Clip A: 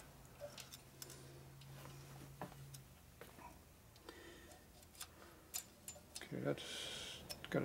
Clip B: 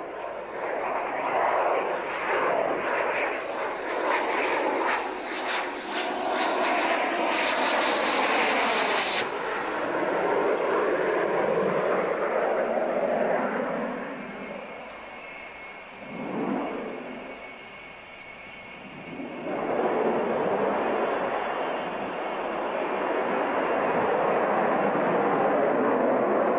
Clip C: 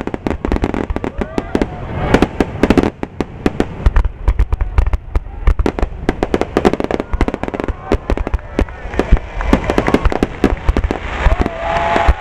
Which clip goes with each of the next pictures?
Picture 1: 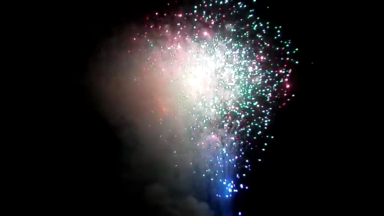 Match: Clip C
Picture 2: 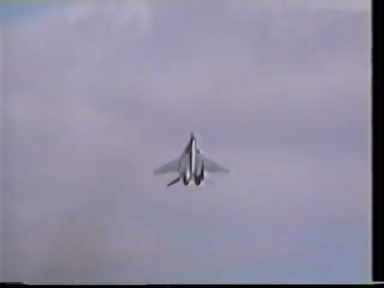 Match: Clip B